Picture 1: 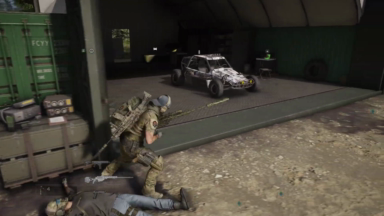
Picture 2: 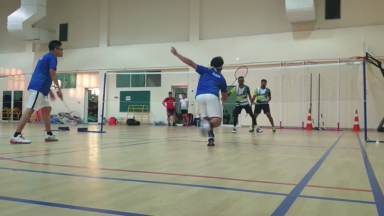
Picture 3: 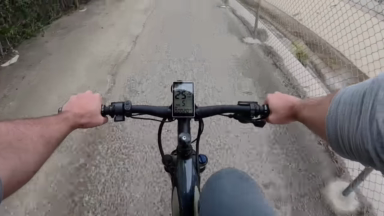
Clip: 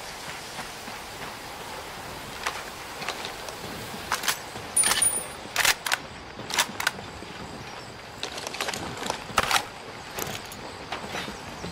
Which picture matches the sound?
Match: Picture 1